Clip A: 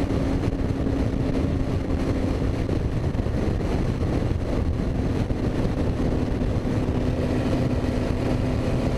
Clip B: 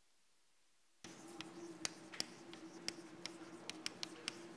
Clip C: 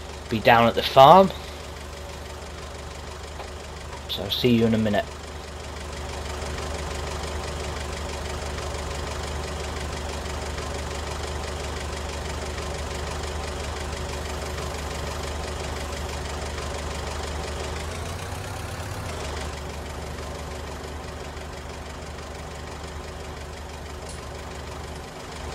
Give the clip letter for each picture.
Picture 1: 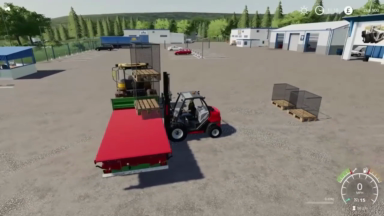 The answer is C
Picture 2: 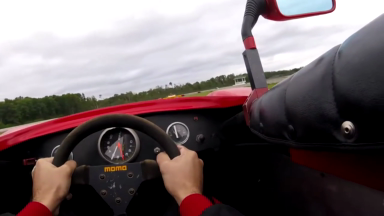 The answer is A